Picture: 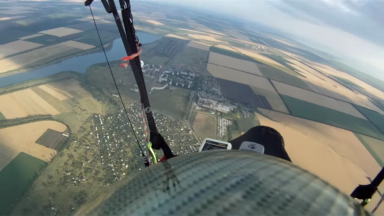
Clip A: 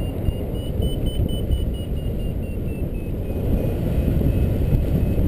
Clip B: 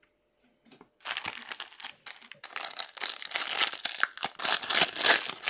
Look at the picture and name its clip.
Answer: A